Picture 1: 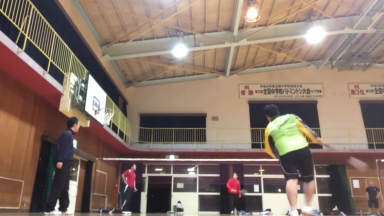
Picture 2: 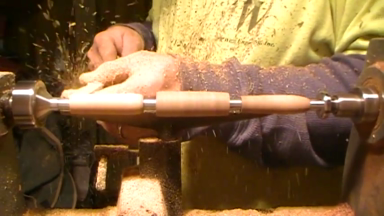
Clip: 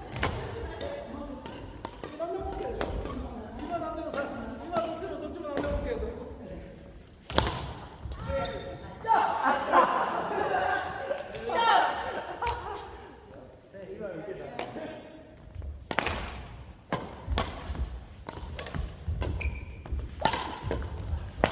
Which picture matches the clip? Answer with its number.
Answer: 1